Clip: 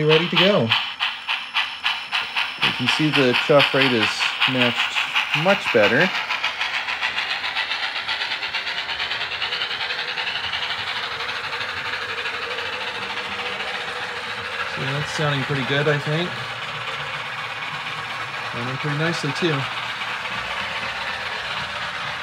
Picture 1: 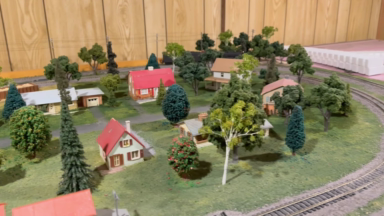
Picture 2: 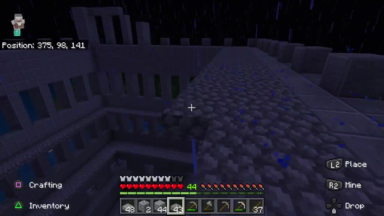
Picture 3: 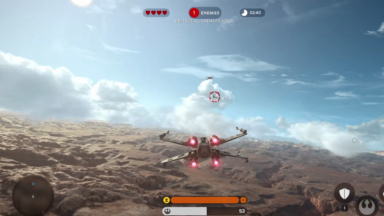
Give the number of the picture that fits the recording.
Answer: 1